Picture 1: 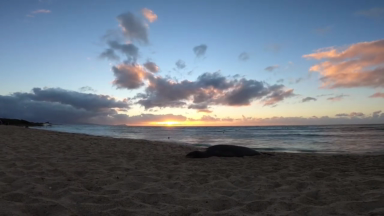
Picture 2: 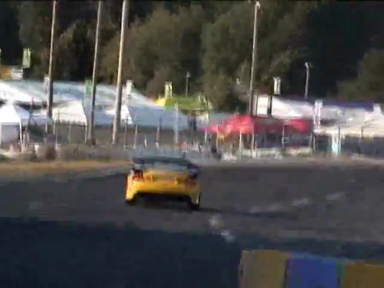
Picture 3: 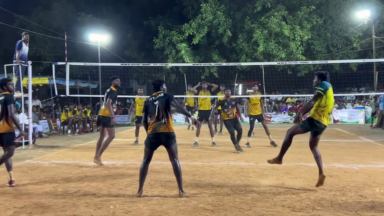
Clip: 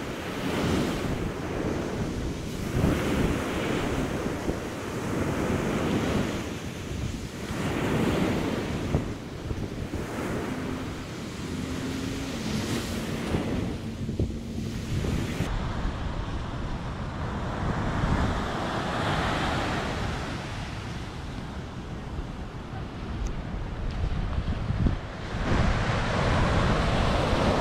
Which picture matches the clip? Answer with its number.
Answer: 1